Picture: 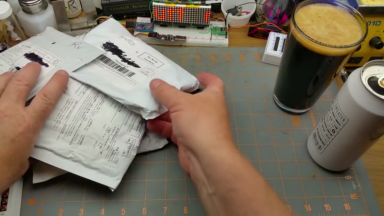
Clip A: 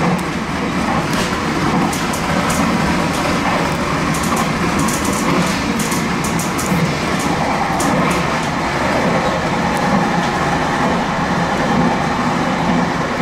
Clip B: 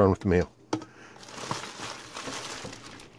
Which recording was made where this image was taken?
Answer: B